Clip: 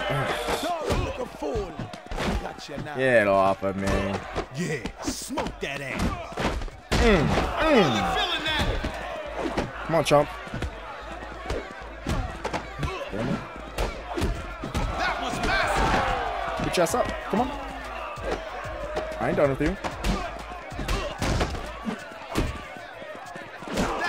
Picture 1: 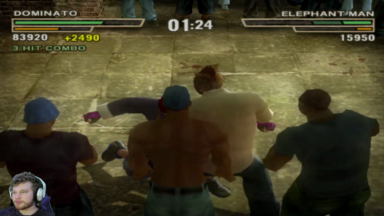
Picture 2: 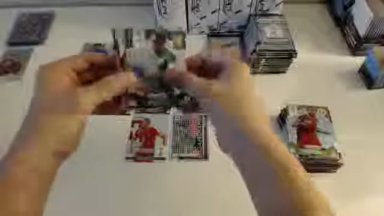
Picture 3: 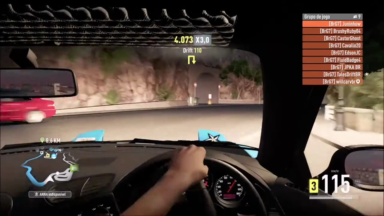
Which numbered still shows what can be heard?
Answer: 1